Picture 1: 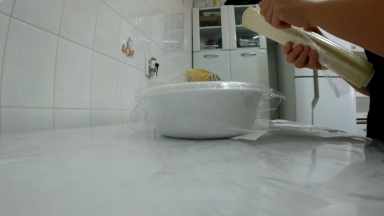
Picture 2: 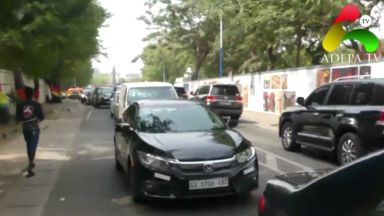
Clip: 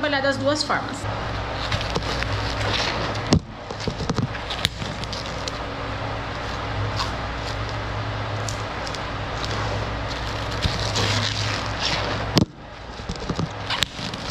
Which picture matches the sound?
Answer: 1